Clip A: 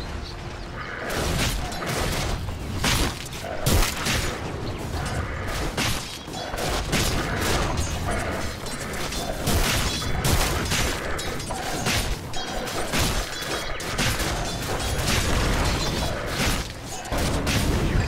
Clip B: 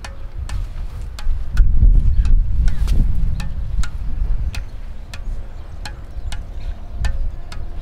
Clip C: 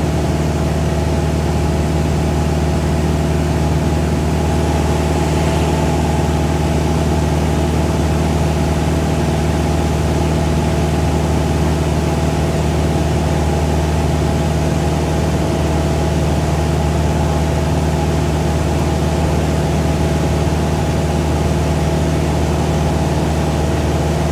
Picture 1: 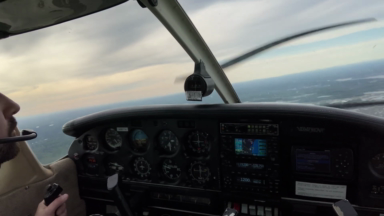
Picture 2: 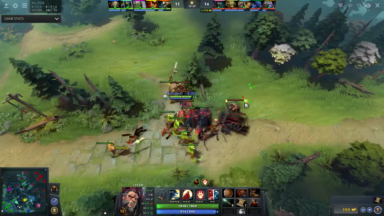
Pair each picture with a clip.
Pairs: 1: C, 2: A